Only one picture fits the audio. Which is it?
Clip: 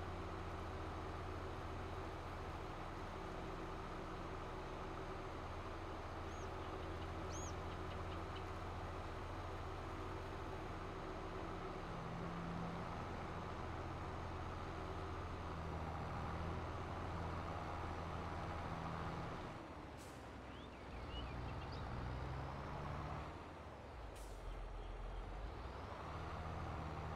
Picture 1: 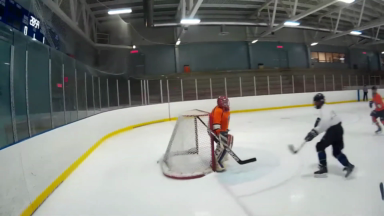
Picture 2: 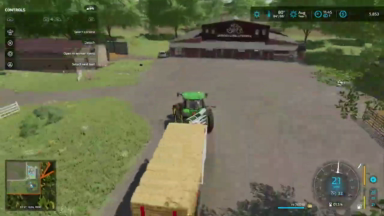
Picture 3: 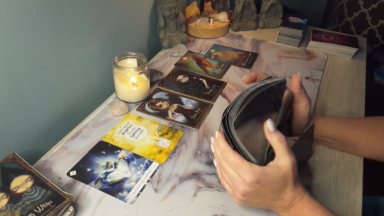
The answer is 2